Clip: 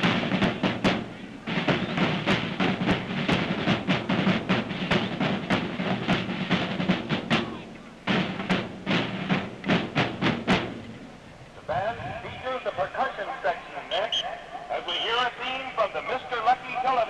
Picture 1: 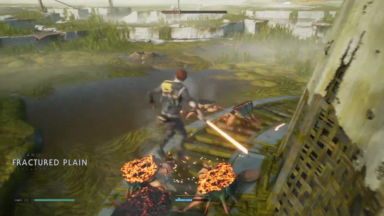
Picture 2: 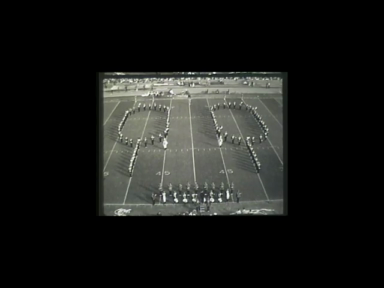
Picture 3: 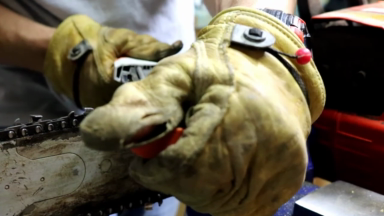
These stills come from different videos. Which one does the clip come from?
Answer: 2